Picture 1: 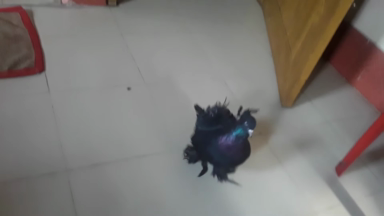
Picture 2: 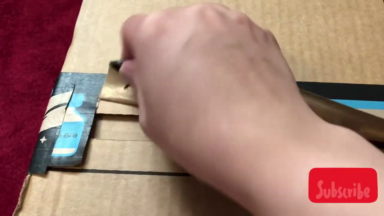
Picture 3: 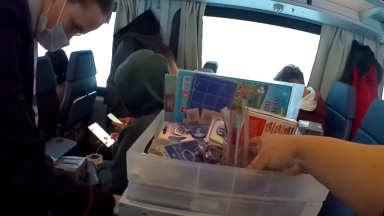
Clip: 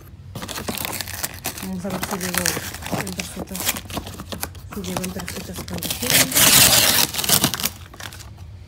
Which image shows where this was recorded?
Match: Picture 2